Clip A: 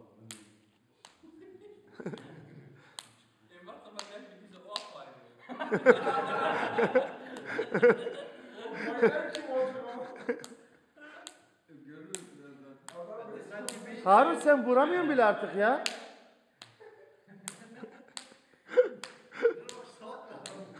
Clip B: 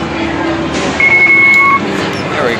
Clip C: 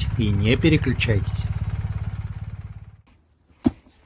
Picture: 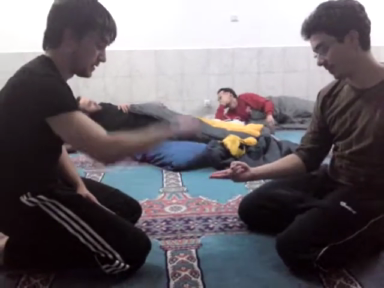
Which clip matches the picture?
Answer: A